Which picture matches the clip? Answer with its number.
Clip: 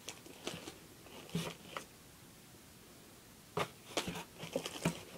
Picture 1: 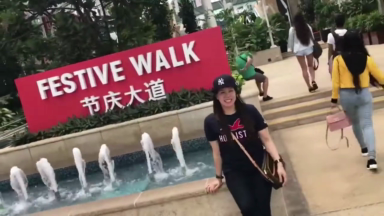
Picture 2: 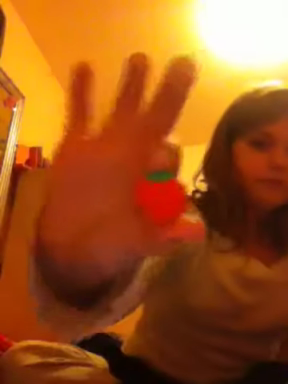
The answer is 2